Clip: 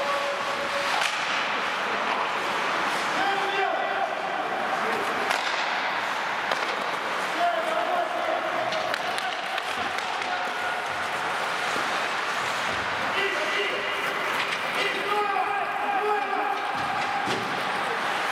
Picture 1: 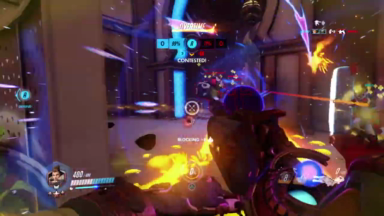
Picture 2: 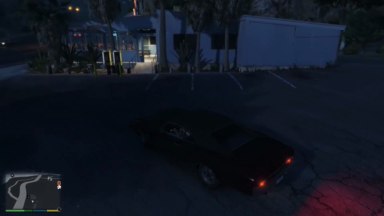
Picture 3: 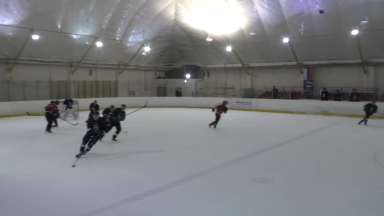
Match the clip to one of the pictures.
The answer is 3